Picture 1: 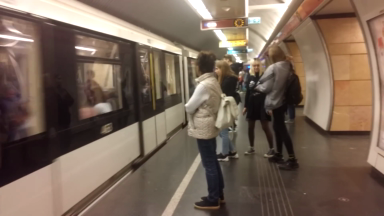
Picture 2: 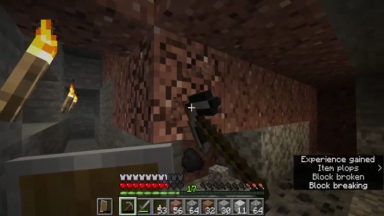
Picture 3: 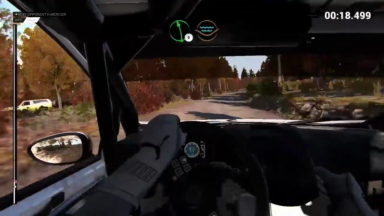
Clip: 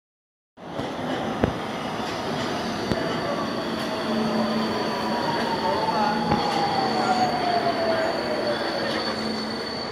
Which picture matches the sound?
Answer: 1